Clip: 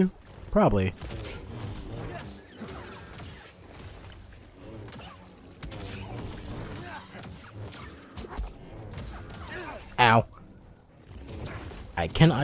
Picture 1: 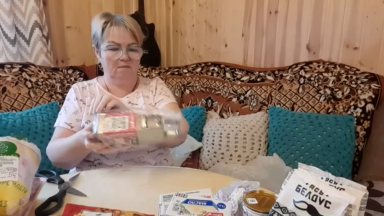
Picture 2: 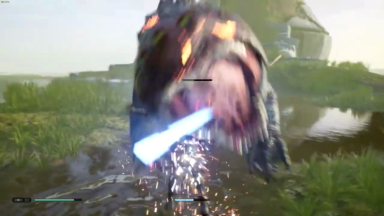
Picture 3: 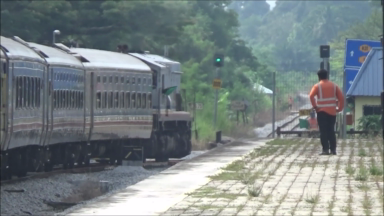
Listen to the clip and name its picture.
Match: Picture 2